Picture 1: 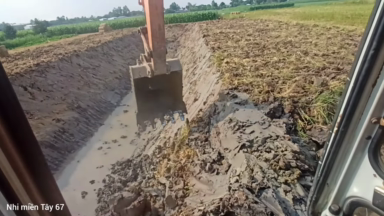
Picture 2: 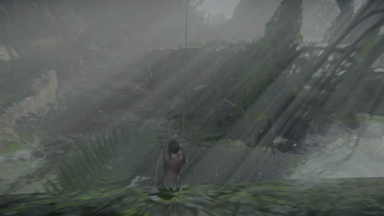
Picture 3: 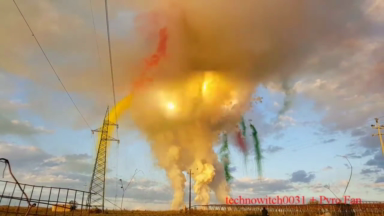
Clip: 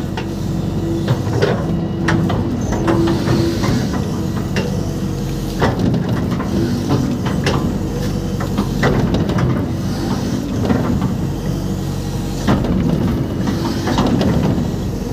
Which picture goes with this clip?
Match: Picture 1